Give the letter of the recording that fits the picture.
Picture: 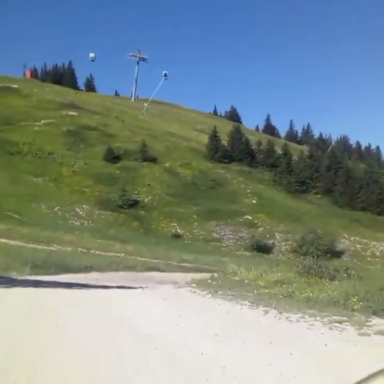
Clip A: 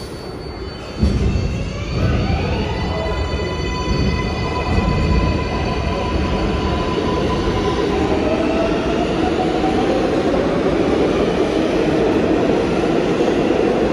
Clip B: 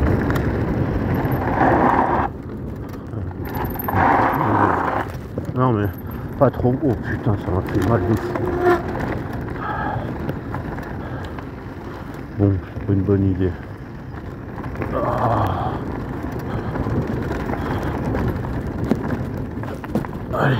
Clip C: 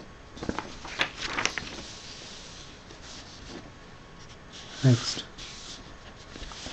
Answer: B